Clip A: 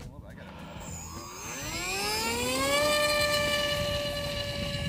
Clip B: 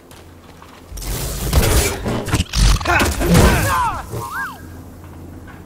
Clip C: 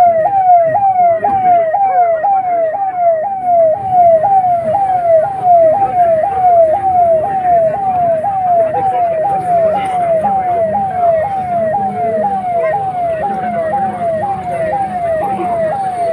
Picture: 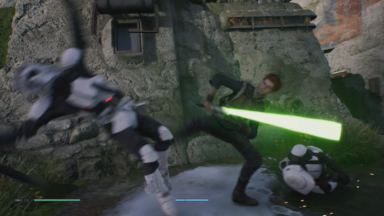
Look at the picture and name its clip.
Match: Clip B